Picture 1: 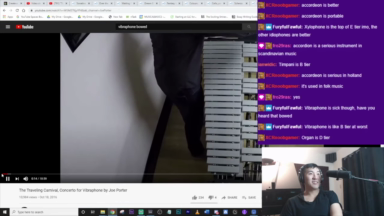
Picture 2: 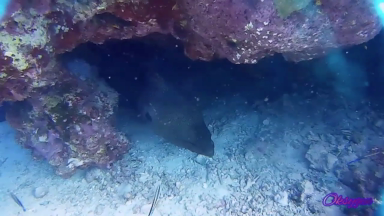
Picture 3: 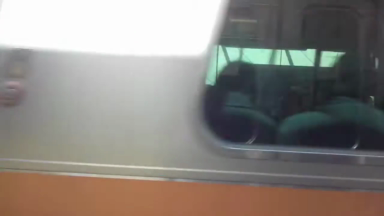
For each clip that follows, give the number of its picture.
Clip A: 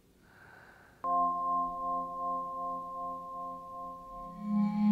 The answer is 1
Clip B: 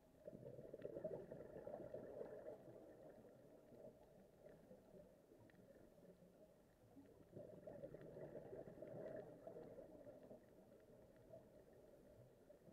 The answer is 2